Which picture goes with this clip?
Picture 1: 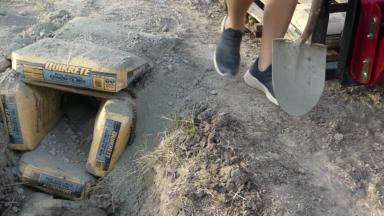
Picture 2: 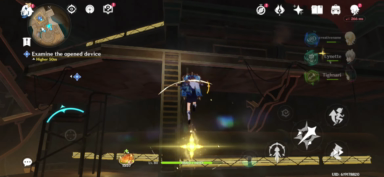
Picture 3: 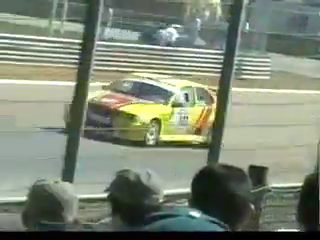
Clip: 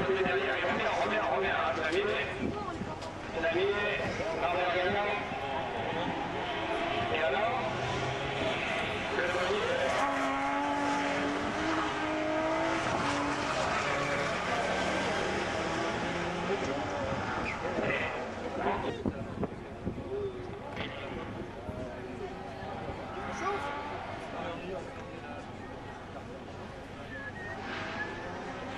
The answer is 3